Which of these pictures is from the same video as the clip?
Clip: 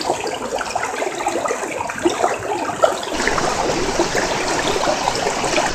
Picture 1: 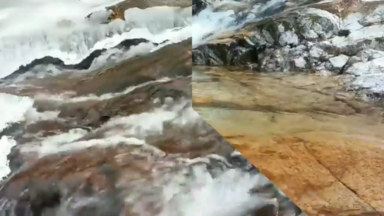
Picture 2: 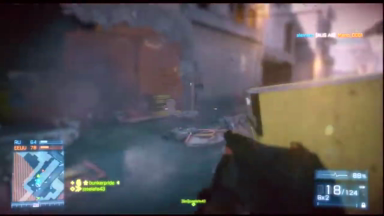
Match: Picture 1